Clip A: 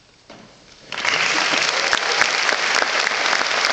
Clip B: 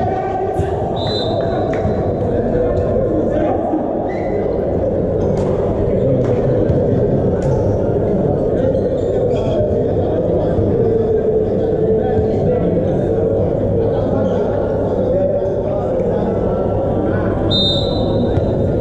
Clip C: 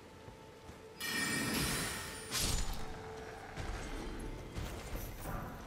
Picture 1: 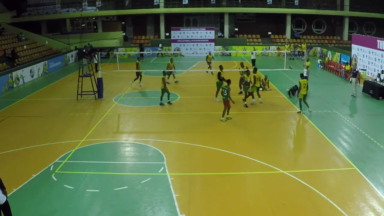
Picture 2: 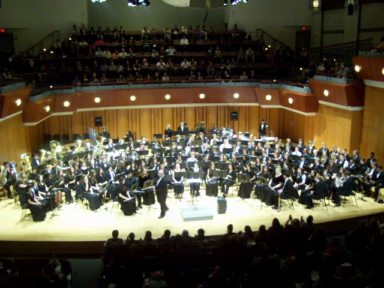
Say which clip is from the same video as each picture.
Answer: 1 B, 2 A